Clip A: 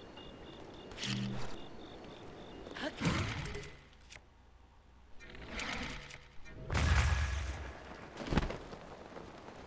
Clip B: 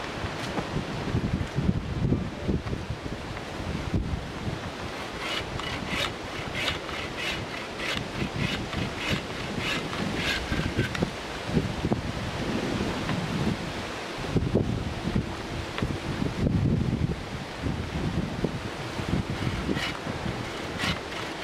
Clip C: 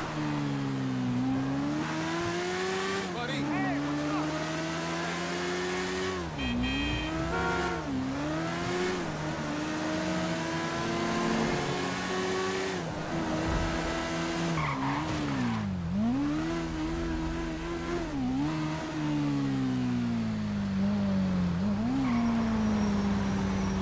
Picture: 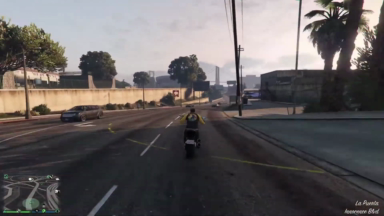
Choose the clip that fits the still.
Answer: C